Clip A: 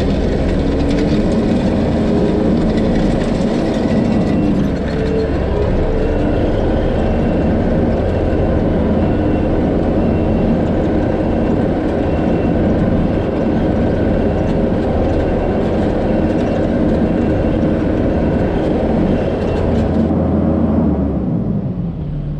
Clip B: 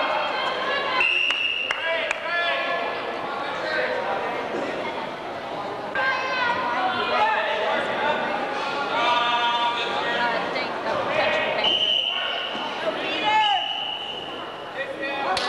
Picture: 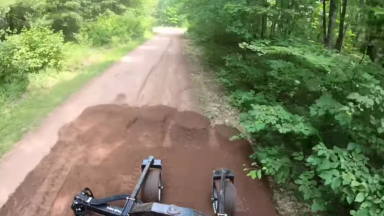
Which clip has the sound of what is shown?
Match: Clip A